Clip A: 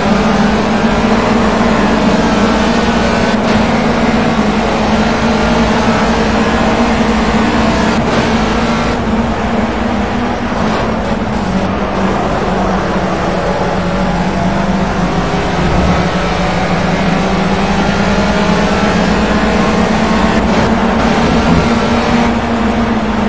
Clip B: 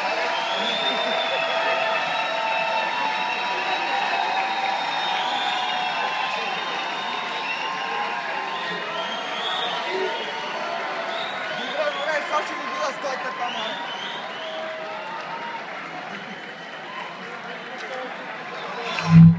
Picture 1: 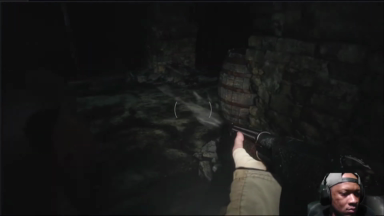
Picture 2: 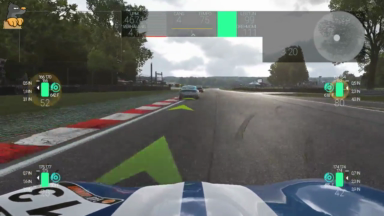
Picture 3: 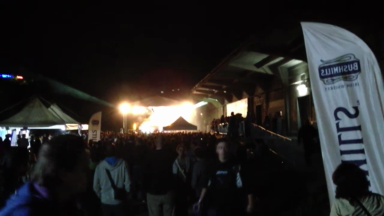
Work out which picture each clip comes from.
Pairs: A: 2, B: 3